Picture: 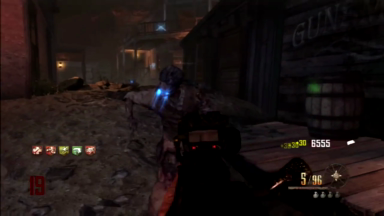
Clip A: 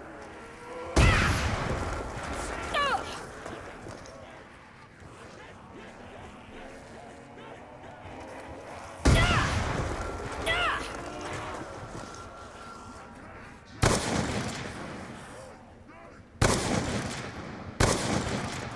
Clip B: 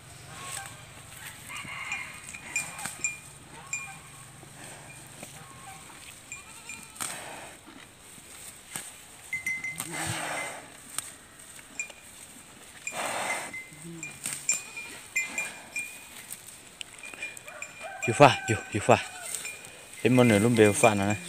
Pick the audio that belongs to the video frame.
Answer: A